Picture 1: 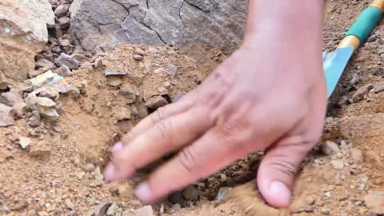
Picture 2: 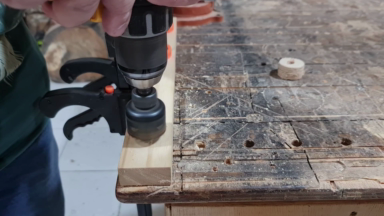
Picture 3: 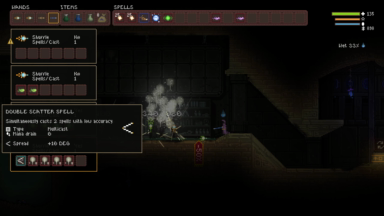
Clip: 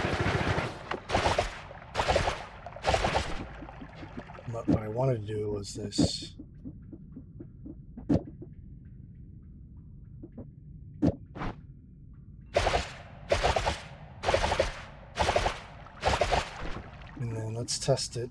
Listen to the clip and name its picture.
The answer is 3